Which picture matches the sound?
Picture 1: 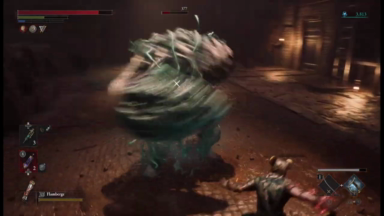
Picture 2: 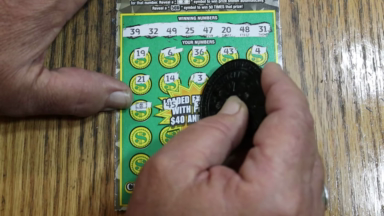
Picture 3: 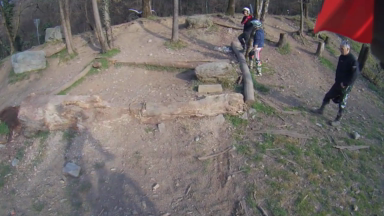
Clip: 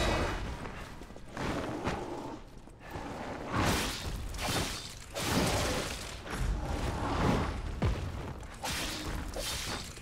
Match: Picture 1